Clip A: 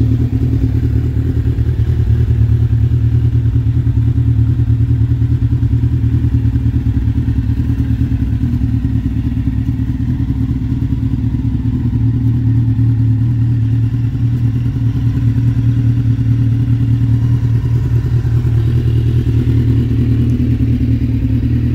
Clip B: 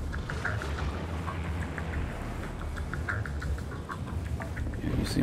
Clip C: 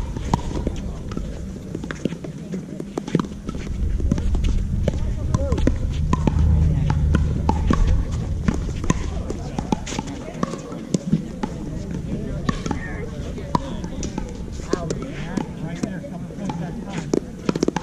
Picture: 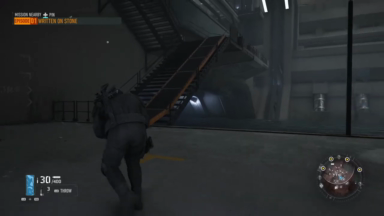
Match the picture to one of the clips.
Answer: B